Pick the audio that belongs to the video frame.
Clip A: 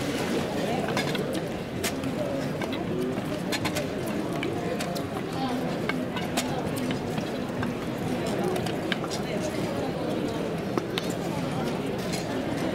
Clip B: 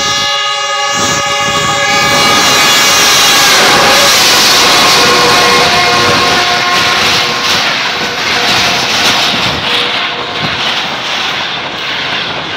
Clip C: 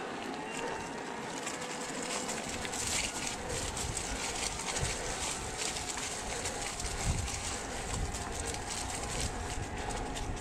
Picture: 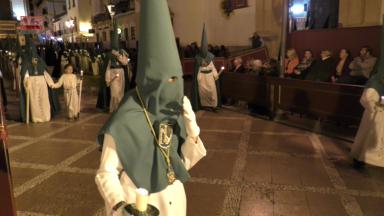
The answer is A